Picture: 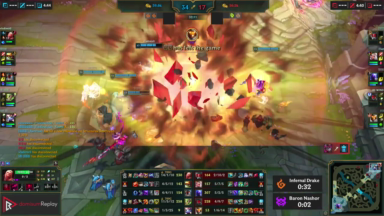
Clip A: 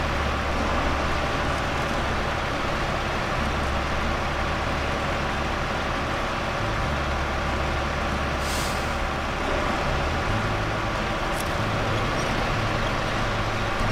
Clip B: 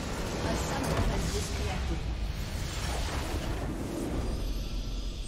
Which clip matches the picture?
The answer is B